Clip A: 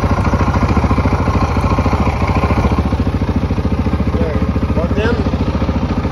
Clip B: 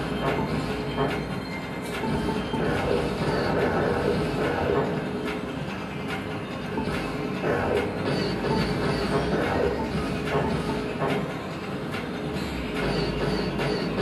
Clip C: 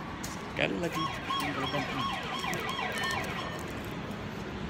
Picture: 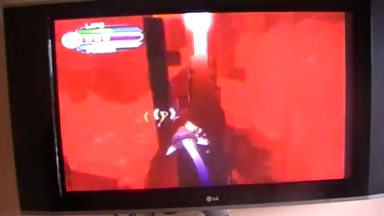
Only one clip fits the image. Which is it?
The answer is B